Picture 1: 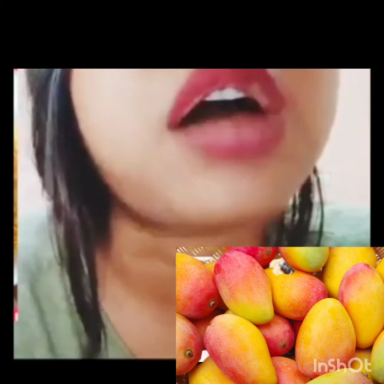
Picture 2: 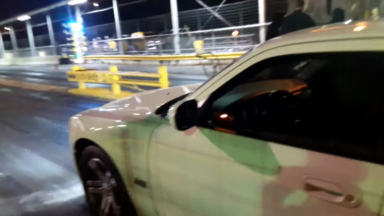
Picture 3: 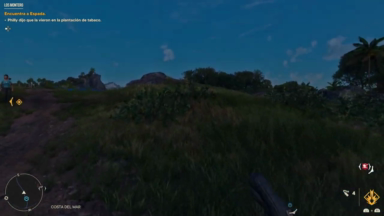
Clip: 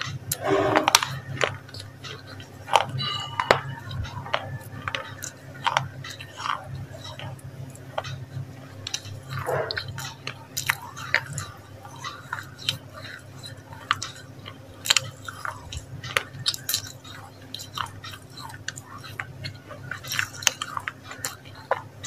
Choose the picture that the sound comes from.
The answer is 1